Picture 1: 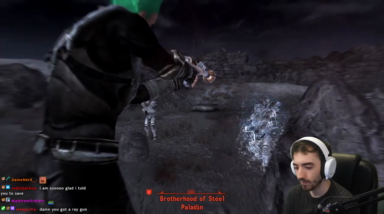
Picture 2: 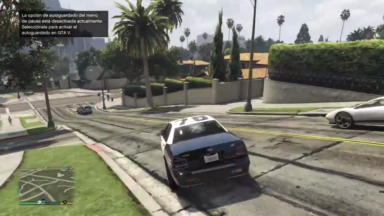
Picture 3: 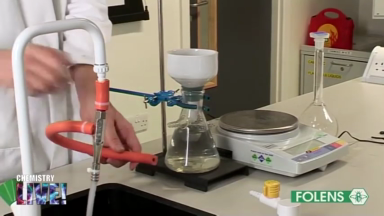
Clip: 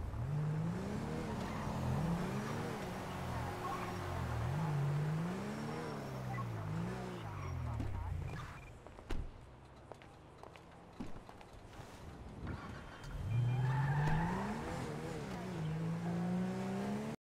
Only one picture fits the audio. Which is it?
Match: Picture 2